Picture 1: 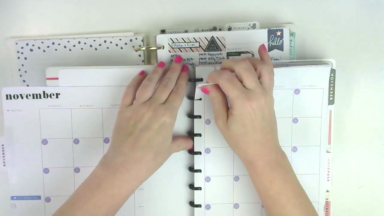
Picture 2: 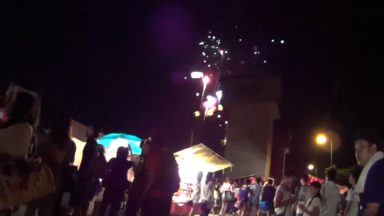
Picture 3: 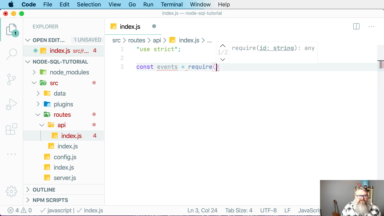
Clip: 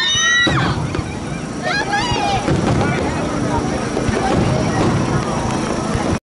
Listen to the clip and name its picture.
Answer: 2